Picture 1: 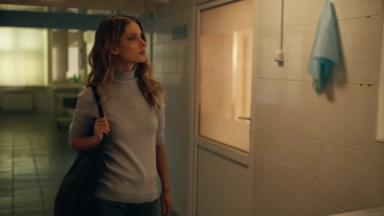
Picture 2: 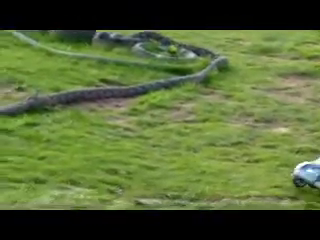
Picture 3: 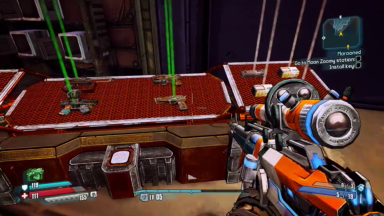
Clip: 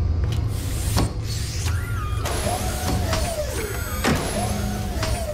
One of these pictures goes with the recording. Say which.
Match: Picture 3